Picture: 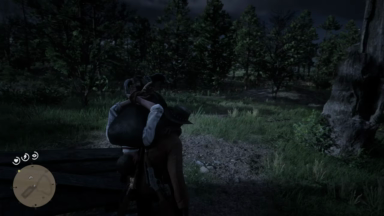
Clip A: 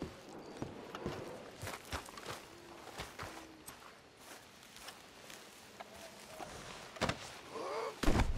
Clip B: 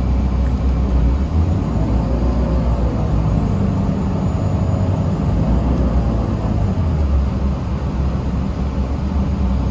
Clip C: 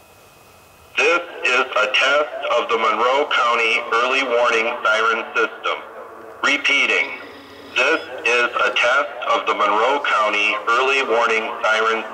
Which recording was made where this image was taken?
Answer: A